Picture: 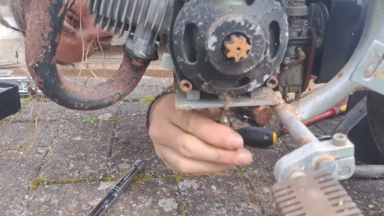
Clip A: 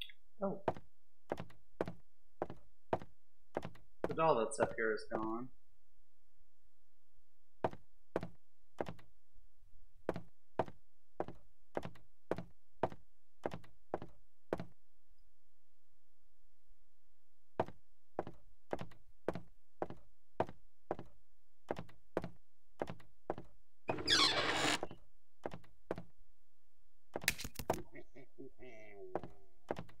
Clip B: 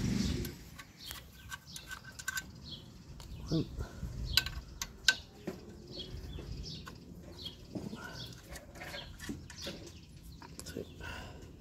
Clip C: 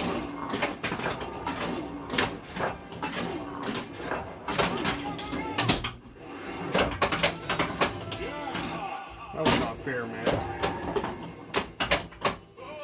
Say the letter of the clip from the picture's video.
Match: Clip B